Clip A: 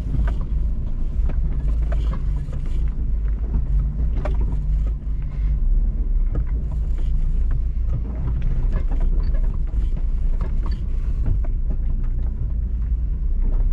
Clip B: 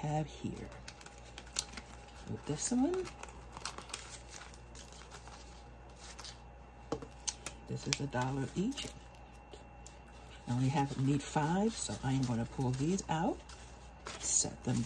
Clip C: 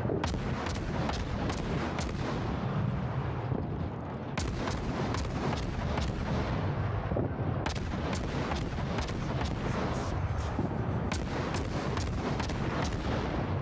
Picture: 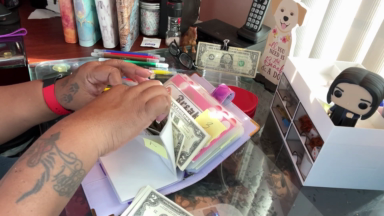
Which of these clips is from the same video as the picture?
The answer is B